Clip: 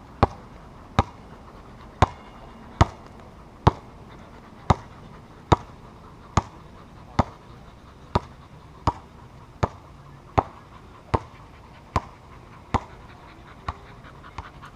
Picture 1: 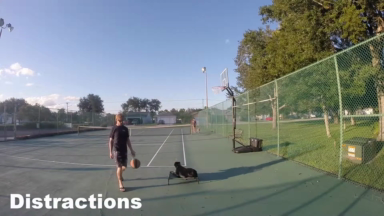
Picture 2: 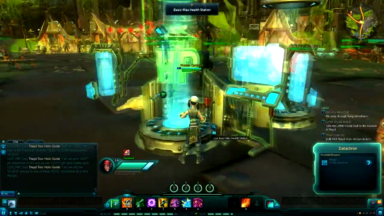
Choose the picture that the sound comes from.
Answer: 1